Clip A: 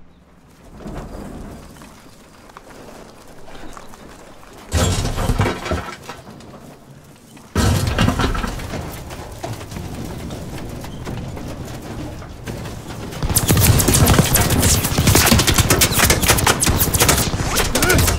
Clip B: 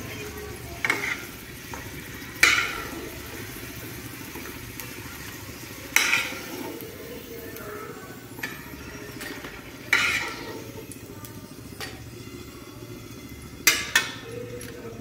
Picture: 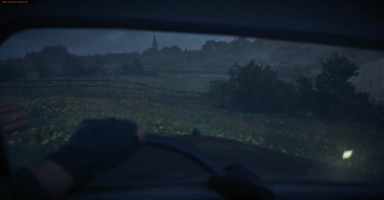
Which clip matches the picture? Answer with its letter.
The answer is A